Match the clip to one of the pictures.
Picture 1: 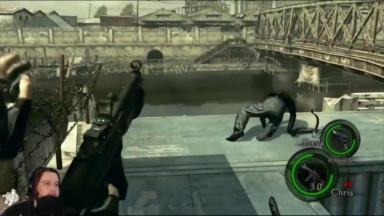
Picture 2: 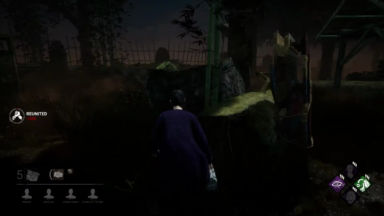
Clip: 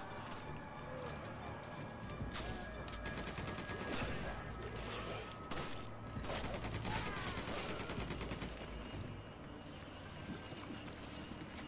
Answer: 1